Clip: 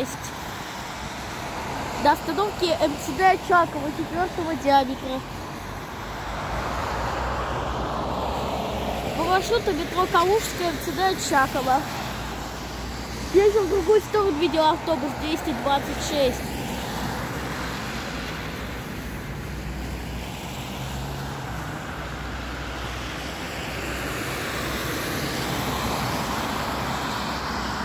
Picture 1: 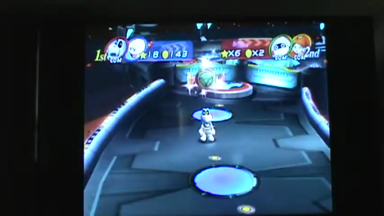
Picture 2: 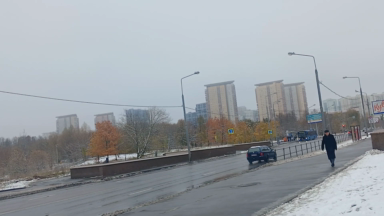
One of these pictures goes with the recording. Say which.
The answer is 2